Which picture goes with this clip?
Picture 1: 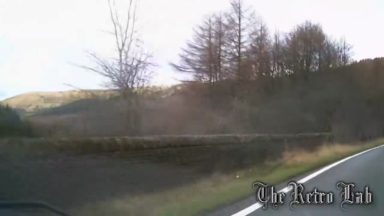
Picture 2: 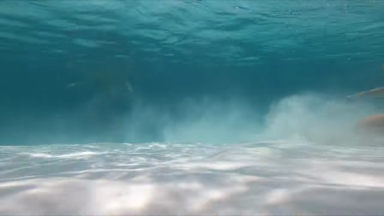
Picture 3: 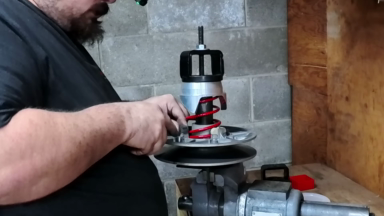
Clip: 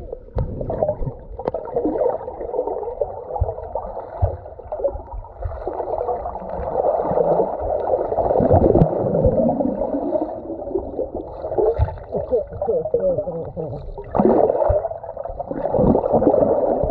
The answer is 2